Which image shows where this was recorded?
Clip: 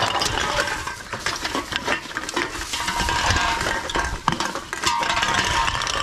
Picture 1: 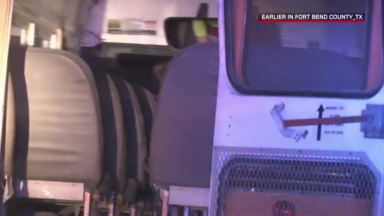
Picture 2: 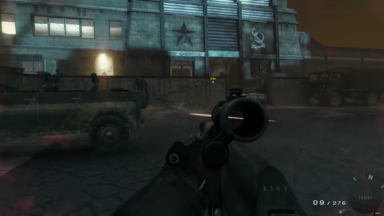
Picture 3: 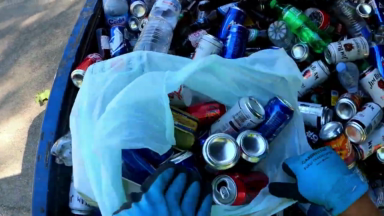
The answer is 3